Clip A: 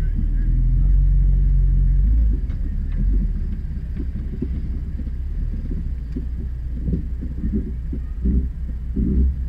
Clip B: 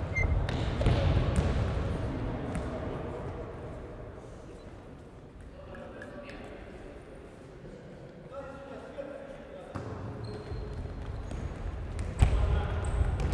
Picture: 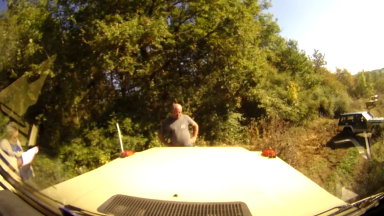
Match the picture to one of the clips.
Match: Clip A